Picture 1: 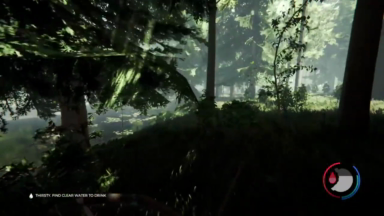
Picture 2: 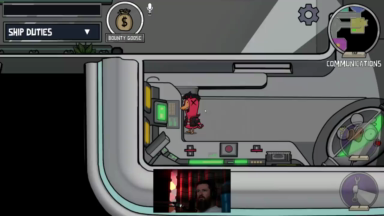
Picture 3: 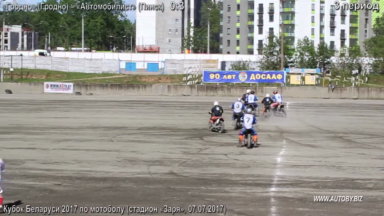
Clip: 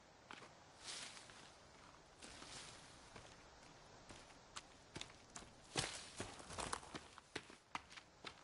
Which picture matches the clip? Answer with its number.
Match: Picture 1